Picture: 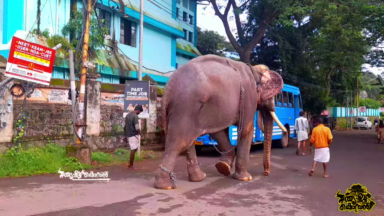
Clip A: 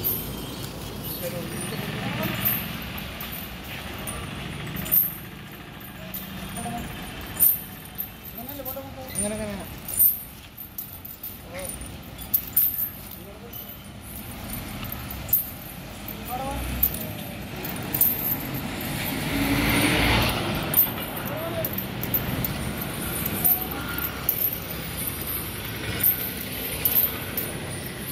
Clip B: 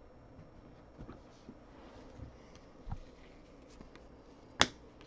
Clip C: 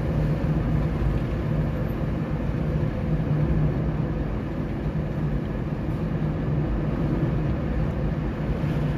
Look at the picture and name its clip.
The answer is A